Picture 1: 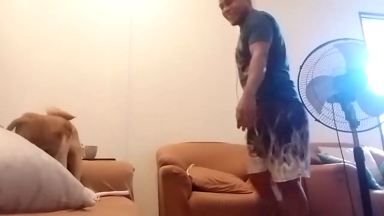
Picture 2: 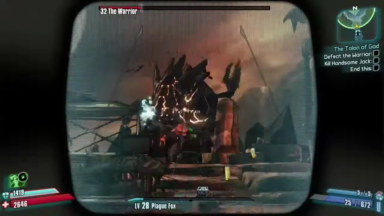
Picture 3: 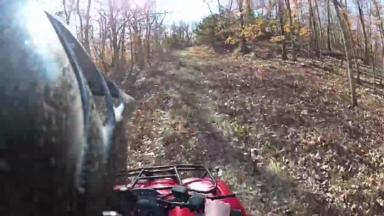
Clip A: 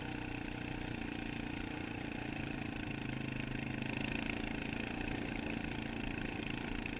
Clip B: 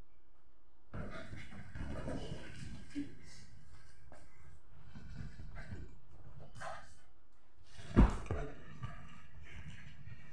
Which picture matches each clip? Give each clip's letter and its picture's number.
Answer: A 3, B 1